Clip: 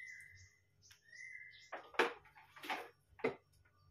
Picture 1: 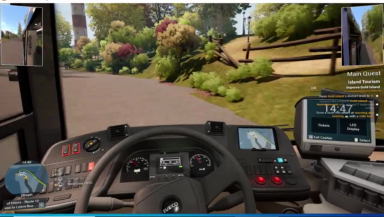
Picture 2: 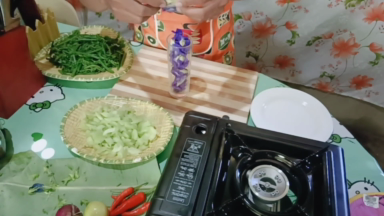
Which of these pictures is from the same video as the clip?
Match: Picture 2